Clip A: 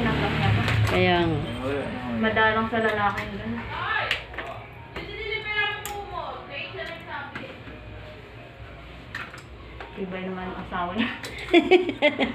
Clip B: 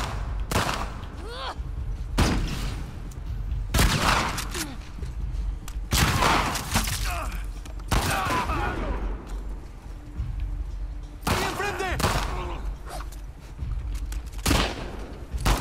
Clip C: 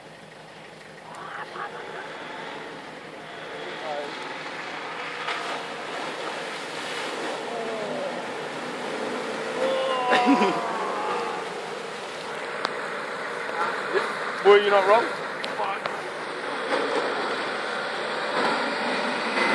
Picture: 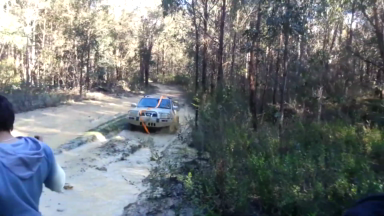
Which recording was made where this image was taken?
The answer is C